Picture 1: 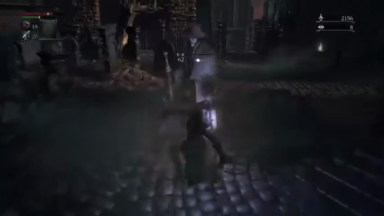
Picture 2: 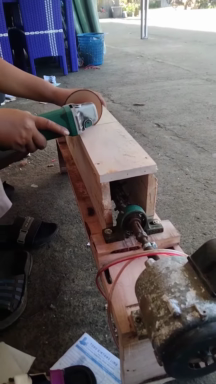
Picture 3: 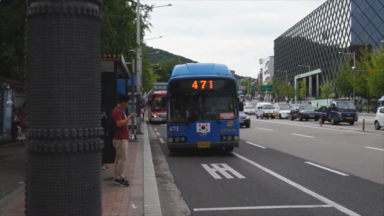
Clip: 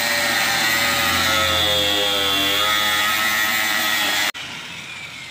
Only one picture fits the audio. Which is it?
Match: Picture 2